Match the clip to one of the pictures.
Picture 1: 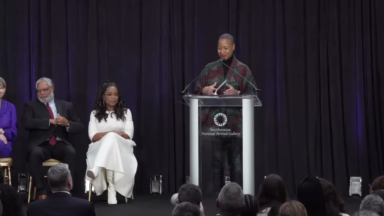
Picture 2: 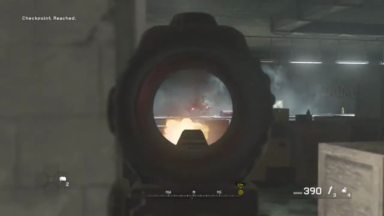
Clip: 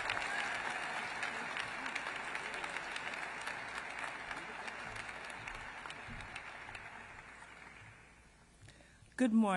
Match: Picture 1